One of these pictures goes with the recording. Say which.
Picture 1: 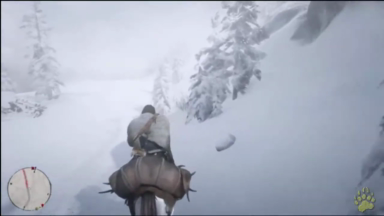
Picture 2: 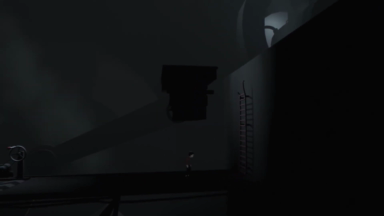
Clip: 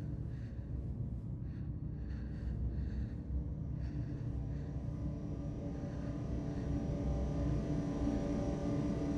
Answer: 2